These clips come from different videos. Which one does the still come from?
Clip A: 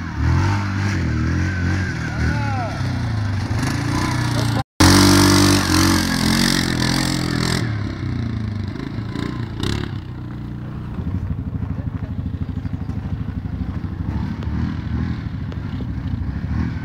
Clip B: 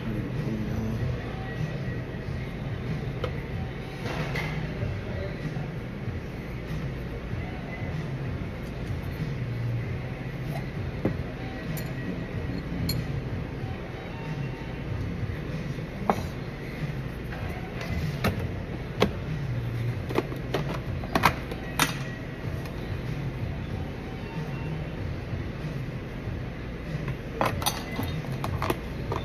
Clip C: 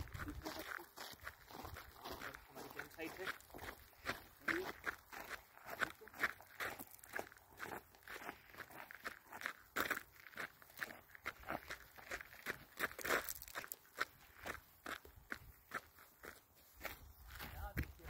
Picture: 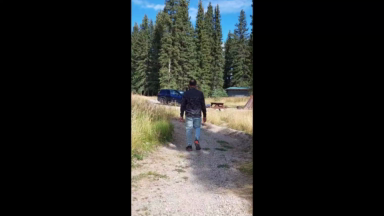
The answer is C